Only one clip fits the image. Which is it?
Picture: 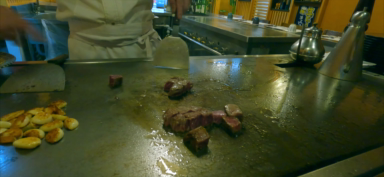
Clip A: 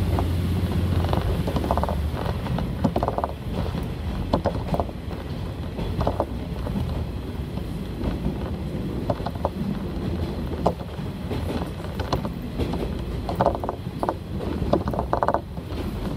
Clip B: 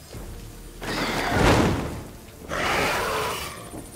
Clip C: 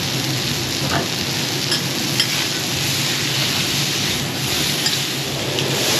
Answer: C